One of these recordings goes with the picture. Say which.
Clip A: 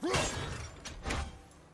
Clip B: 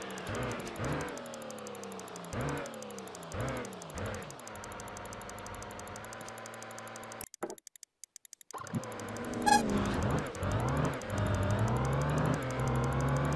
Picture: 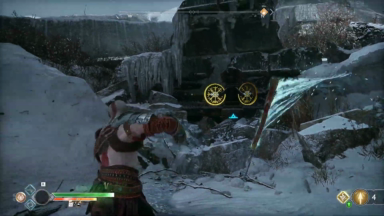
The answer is A